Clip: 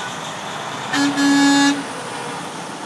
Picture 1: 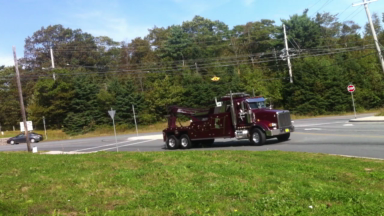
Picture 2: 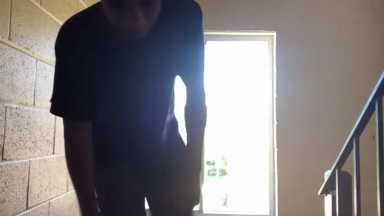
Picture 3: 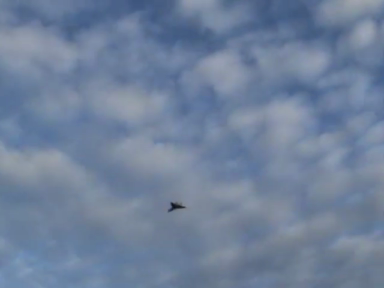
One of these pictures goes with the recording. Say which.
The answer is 1